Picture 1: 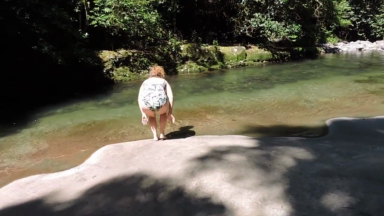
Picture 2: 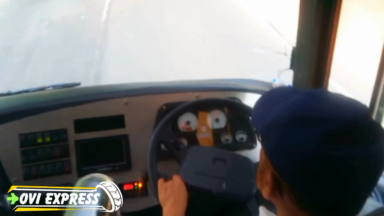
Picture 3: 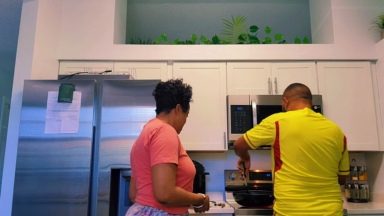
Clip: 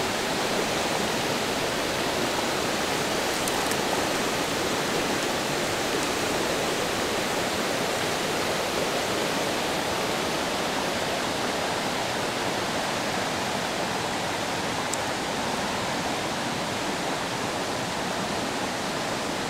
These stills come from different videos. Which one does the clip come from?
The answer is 1